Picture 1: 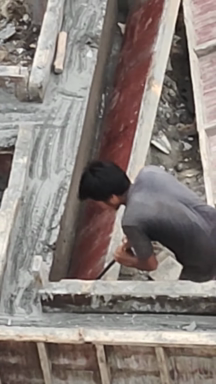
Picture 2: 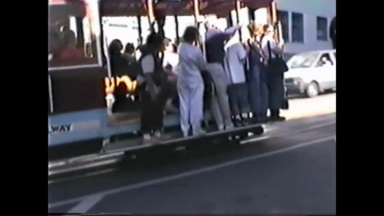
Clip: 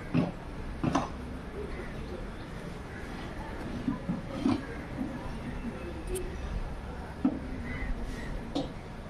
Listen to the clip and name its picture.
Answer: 1